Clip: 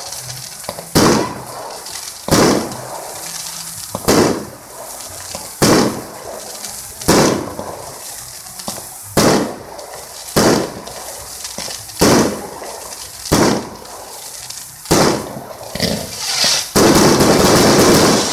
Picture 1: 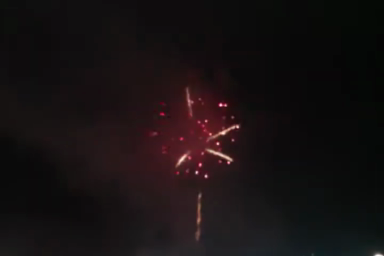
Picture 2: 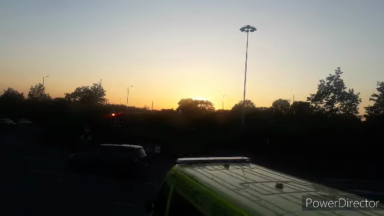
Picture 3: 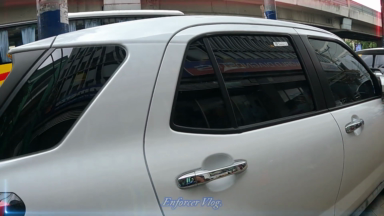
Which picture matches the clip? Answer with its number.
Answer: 1